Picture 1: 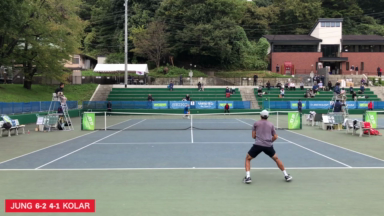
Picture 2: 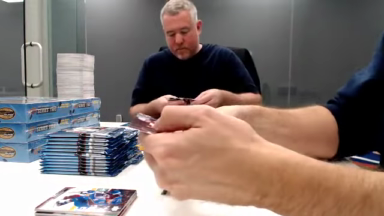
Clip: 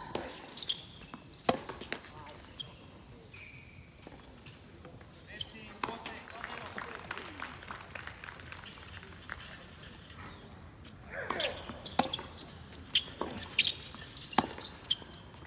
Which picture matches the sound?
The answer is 1